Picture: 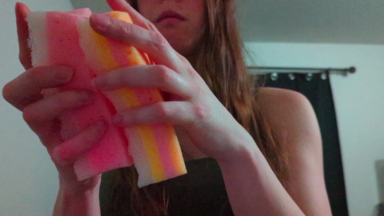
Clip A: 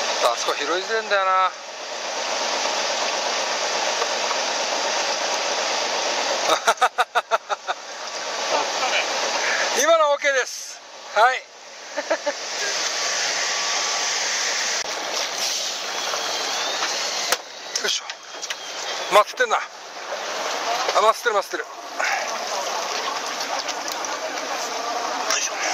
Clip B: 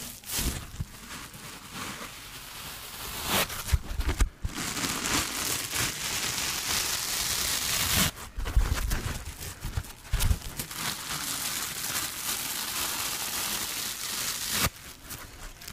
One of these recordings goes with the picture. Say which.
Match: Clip B